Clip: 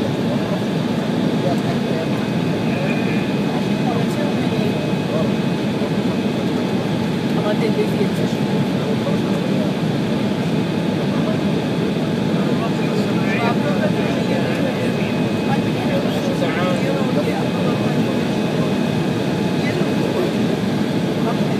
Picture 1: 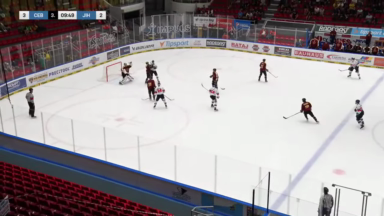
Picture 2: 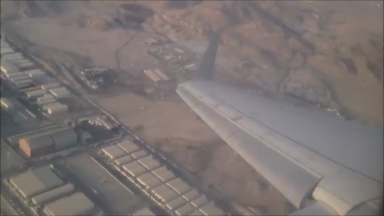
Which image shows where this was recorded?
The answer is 2